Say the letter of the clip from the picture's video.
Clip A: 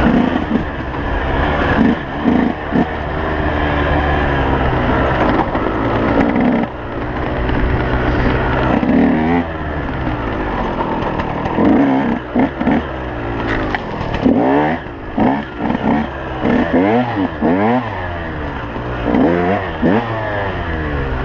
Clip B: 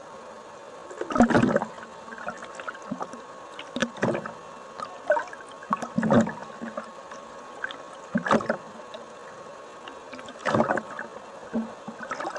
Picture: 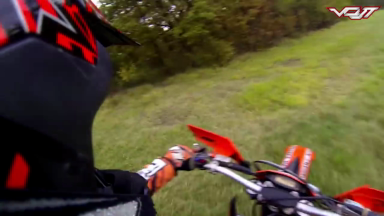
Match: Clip A